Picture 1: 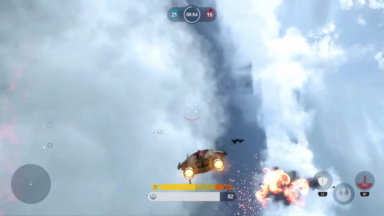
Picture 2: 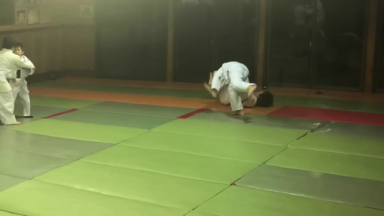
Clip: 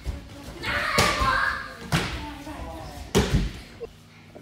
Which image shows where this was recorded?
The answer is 2